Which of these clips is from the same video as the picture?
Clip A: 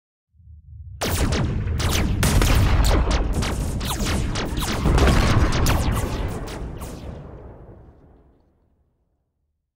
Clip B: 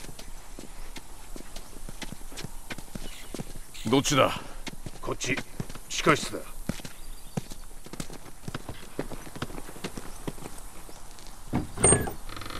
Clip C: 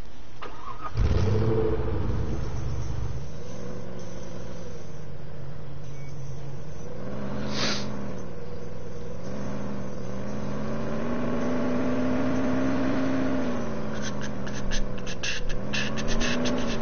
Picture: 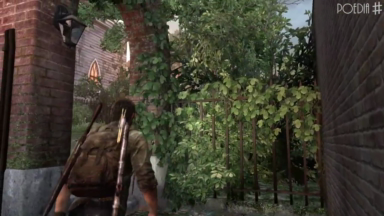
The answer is B